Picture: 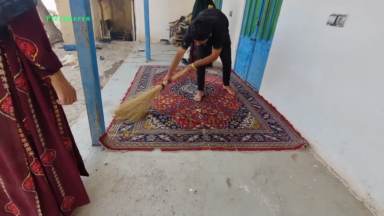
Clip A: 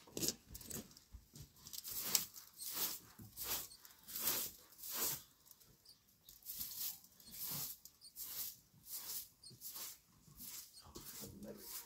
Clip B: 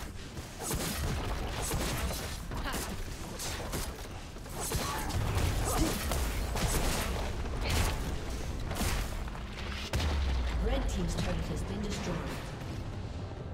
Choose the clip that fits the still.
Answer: A